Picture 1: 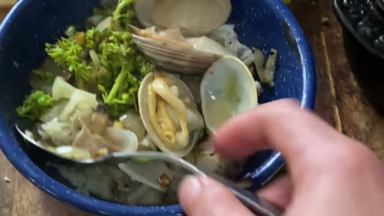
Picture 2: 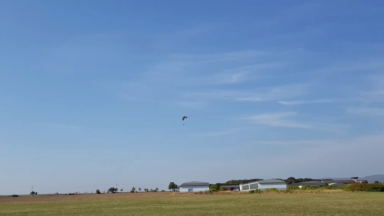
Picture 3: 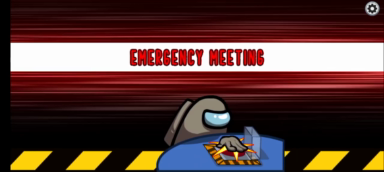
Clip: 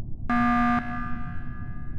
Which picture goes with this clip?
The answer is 3